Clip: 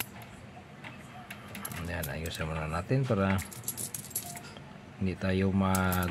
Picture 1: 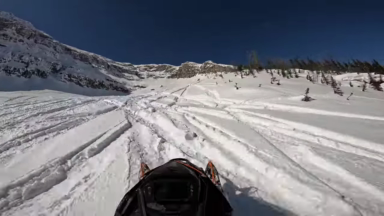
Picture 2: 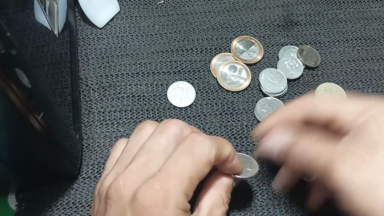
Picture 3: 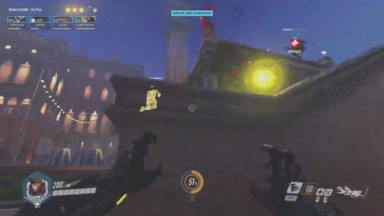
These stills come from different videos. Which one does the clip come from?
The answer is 2